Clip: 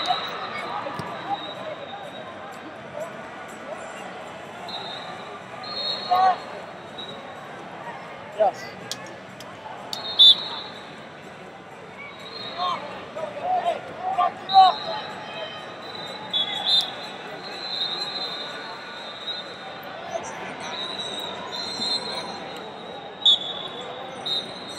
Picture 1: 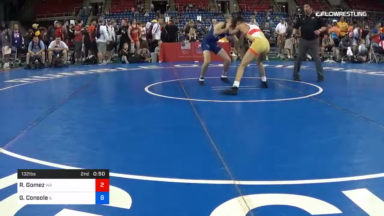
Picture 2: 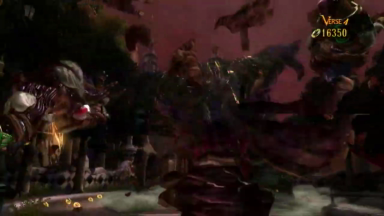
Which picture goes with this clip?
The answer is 1